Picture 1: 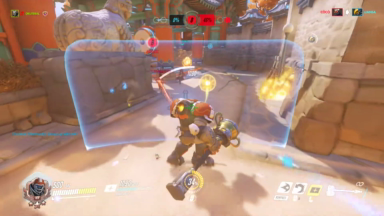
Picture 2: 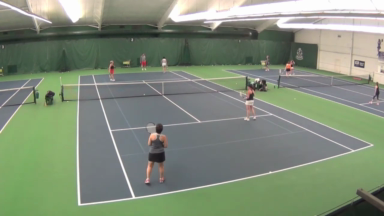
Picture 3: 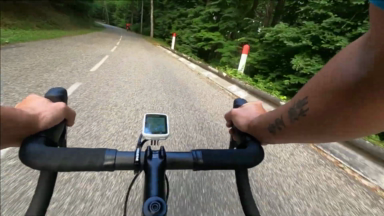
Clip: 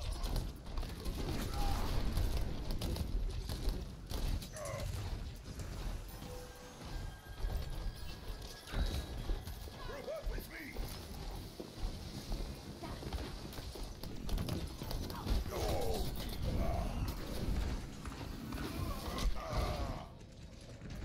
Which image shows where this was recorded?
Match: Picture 1